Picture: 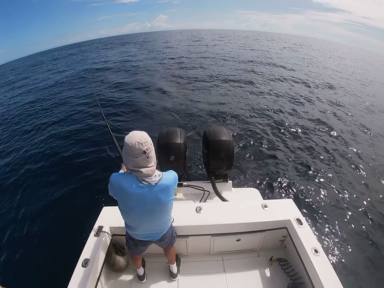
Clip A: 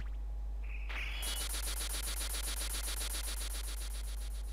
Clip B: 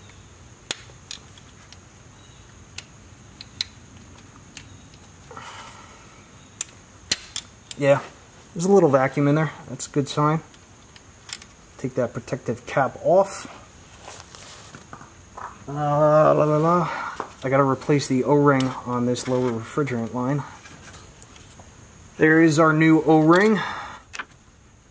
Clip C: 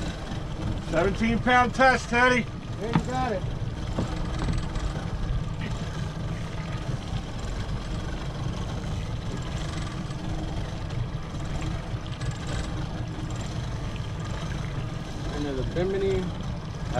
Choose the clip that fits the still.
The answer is C